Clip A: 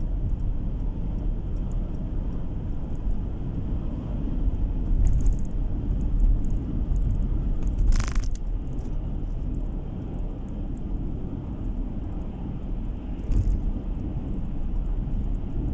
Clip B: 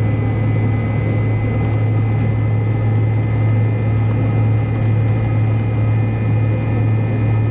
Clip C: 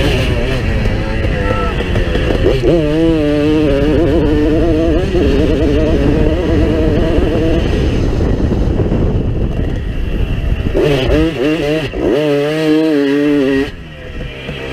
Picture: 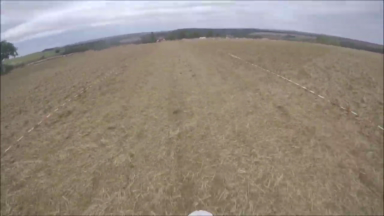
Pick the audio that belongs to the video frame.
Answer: C